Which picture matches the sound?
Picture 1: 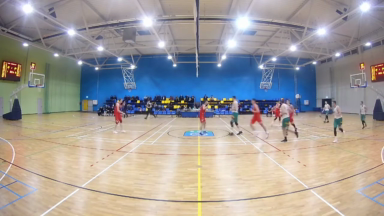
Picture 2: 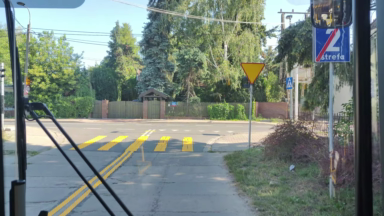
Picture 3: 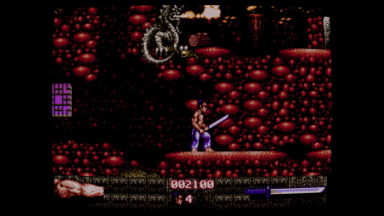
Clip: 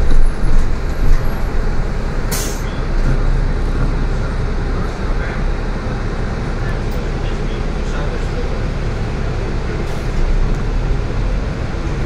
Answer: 2